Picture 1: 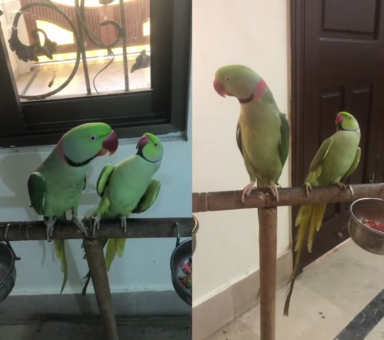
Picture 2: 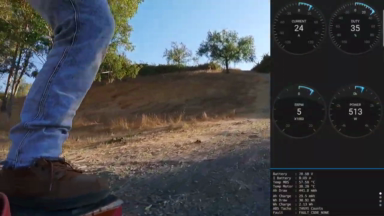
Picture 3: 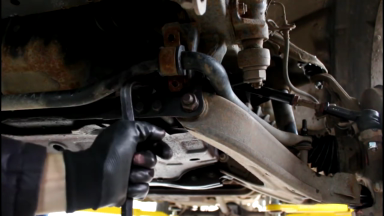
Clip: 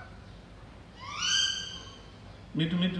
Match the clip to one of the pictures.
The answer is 1